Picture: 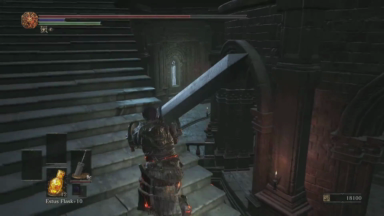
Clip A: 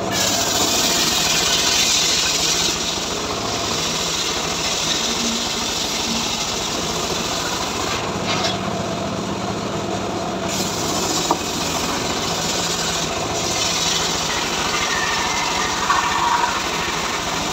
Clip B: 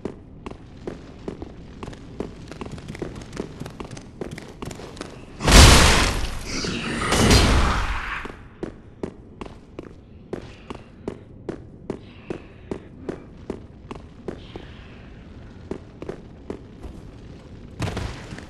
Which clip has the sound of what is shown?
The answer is B